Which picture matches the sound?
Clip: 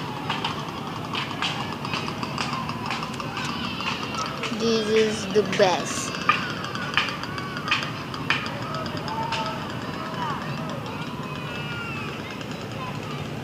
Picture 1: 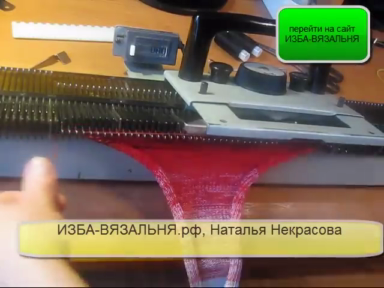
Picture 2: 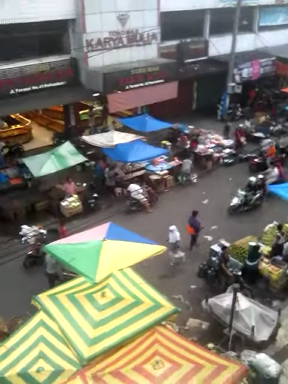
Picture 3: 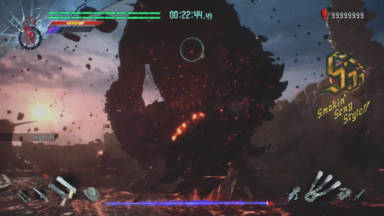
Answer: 2